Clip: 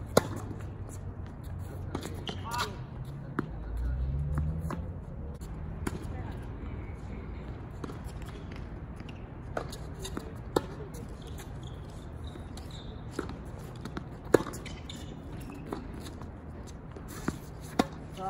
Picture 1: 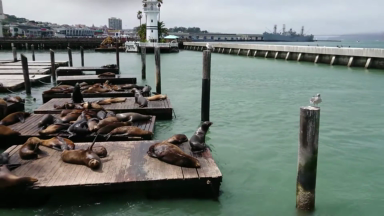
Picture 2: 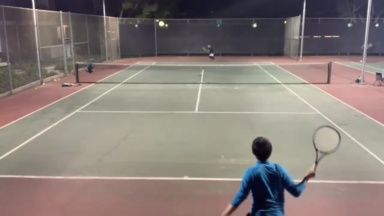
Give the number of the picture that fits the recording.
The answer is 2